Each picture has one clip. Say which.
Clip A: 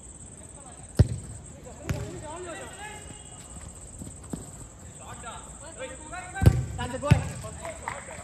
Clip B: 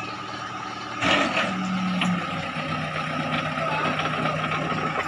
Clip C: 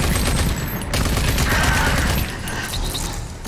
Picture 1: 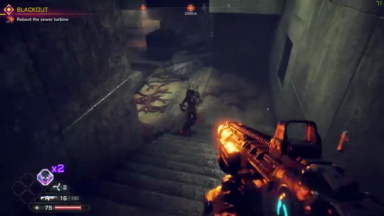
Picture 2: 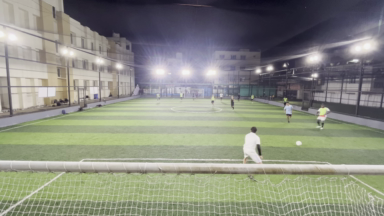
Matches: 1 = C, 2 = A